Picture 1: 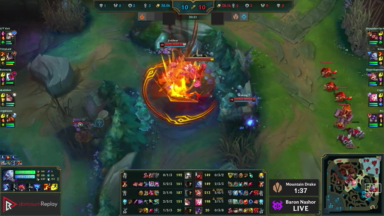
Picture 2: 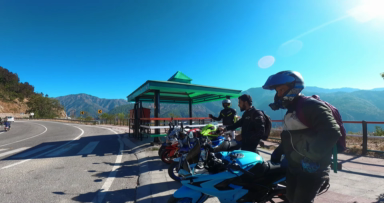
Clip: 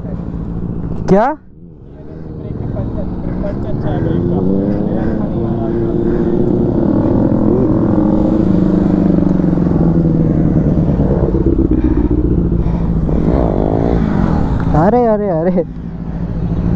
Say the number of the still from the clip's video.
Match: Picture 2